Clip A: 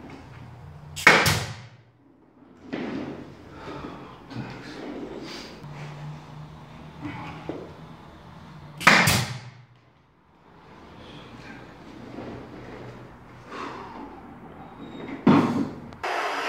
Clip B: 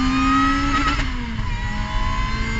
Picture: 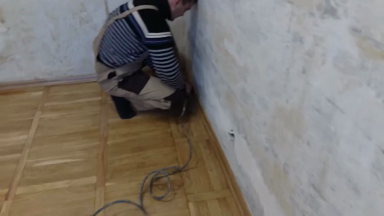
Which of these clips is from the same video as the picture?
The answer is A